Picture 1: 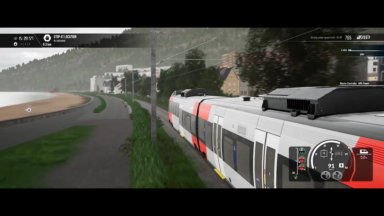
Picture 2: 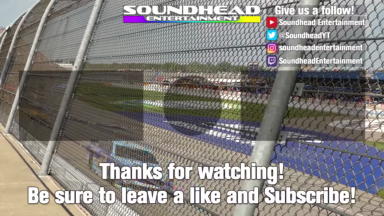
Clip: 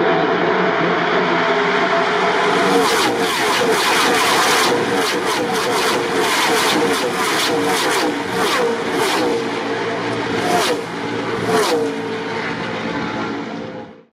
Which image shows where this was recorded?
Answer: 2